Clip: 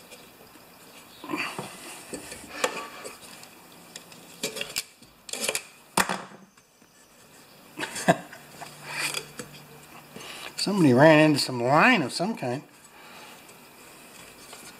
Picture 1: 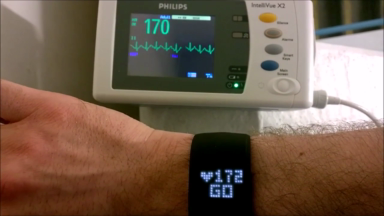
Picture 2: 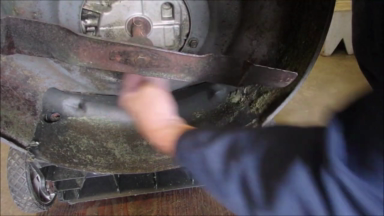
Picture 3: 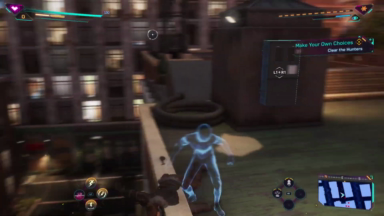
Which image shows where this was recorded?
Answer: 2